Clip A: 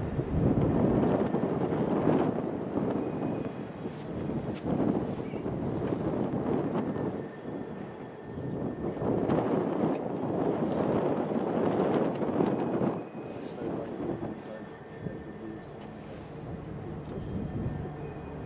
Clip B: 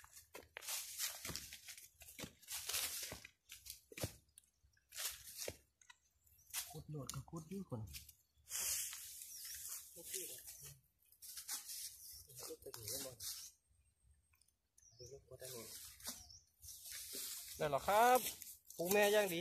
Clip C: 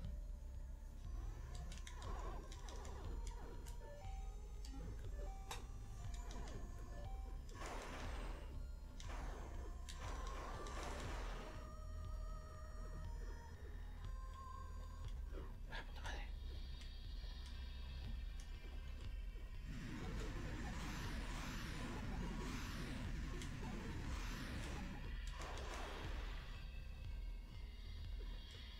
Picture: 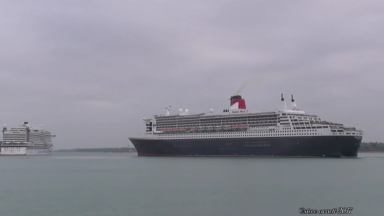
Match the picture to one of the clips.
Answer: A